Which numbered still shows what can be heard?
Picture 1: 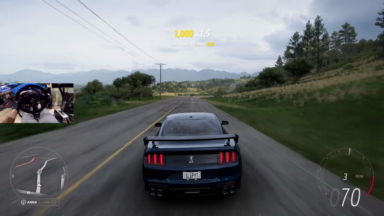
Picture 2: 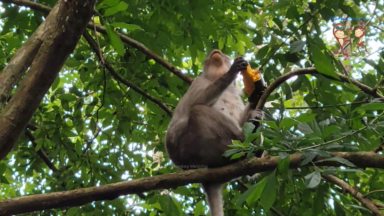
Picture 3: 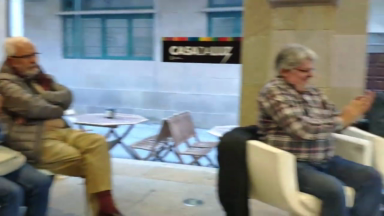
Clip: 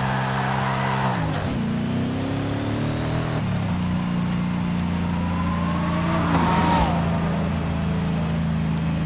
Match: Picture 1